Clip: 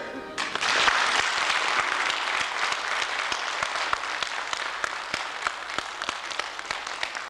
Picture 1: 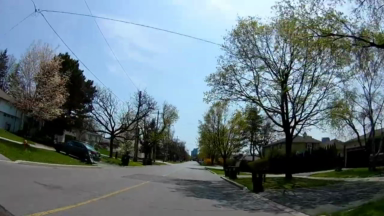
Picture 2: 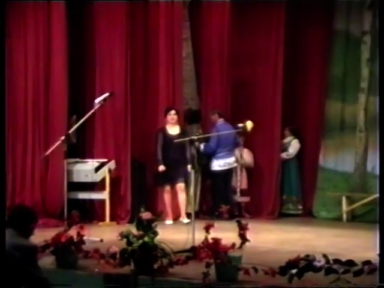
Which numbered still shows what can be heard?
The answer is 2